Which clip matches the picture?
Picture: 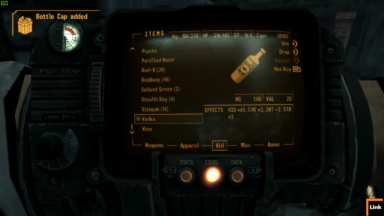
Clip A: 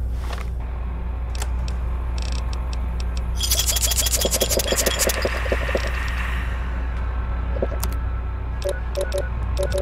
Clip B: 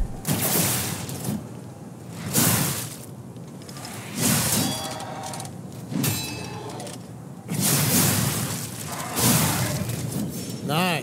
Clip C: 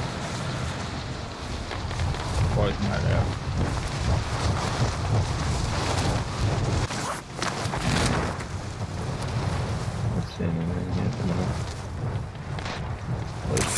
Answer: A